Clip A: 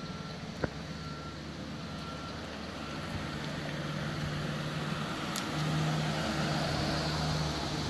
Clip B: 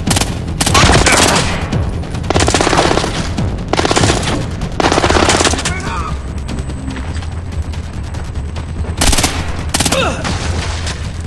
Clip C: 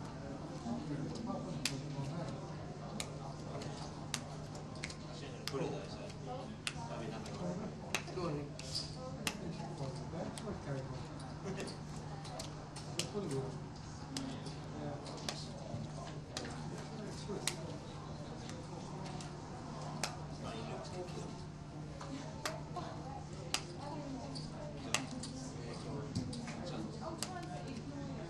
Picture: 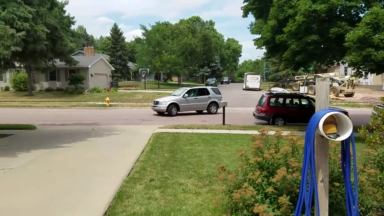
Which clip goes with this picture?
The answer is A